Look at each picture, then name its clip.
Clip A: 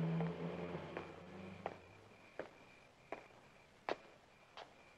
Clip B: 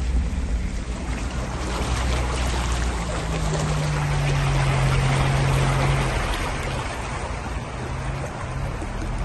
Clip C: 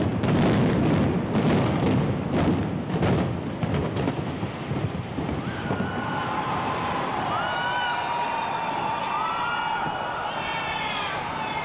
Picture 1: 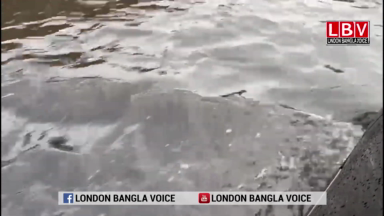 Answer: B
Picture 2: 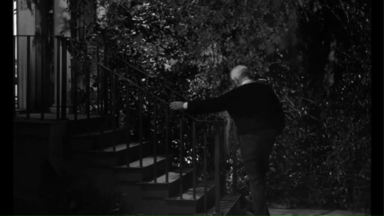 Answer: A